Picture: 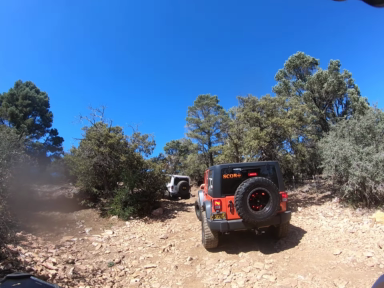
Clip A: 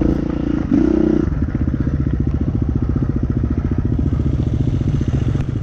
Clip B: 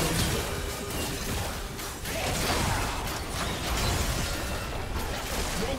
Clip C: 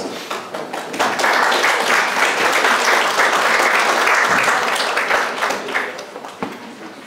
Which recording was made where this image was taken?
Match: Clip A